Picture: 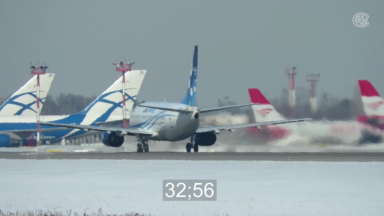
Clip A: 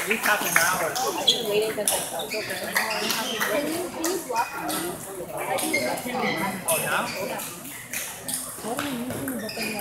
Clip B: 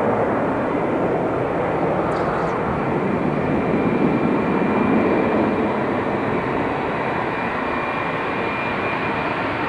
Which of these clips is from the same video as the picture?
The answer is B